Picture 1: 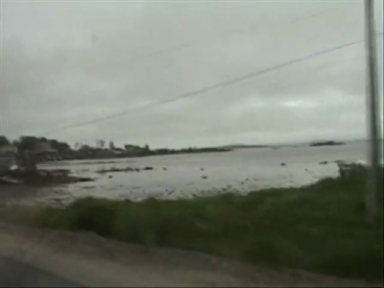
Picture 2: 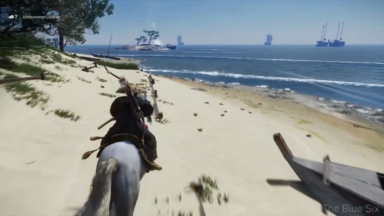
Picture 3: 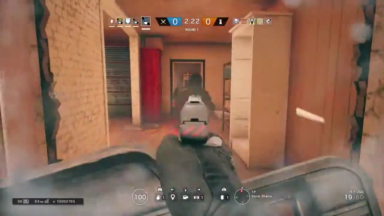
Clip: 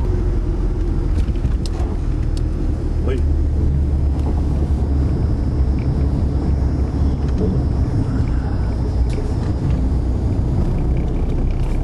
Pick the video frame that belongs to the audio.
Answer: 1